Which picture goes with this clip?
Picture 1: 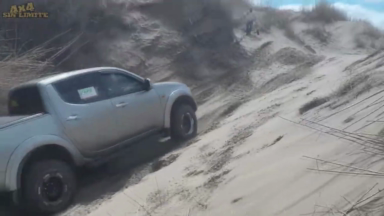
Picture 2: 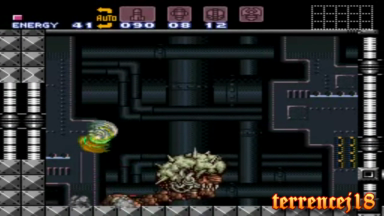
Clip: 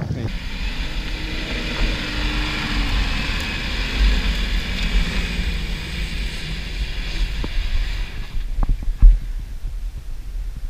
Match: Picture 1